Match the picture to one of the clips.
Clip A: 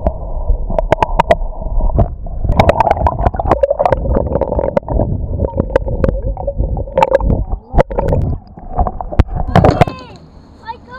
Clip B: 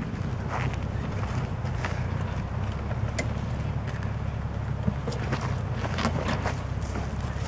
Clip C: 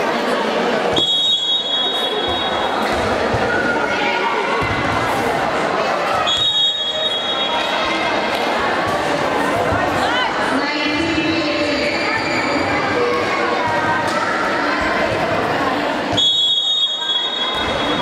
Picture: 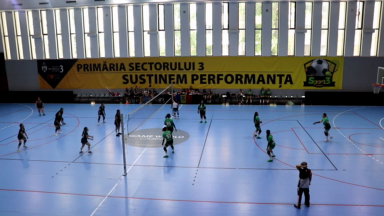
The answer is C